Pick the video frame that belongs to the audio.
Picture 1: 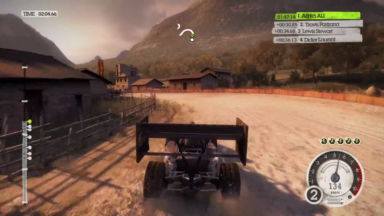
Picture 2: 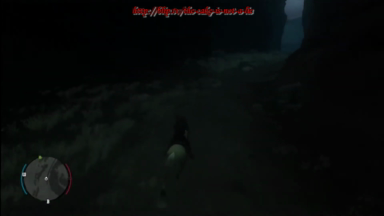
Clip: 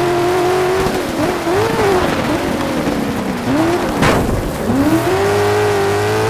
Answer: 1